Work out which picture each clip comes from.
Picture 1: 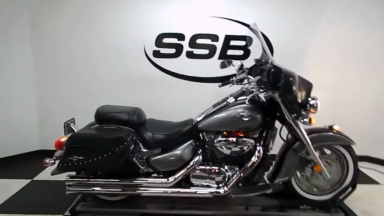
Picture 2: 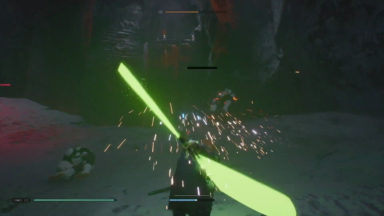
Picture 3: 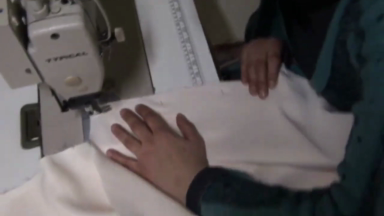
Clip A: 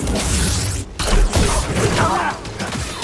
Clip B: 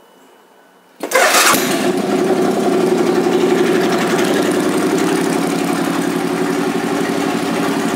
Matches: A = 2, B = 1